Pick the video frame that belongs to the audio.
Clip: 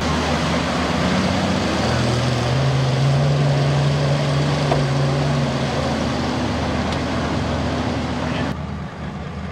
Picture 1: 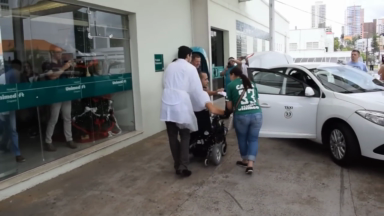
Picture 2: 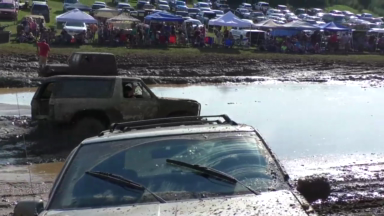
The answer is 2